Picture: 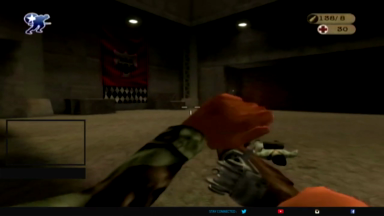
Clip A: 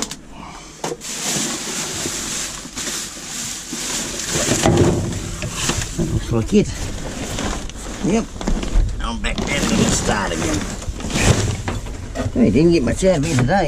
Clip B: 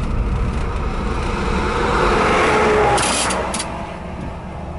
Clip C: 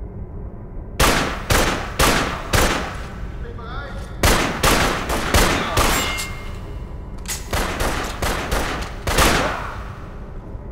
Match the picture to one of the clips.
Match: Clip C